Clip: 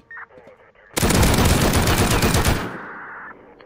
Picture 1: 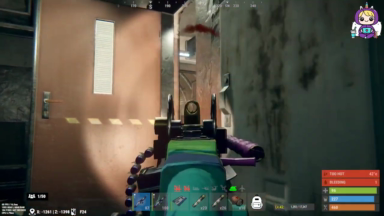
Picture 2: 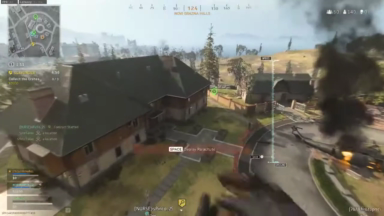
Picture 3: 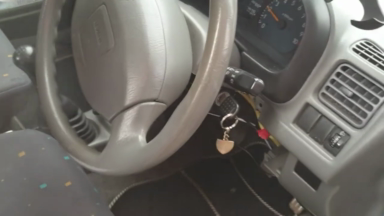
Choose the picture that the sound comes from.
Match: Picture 1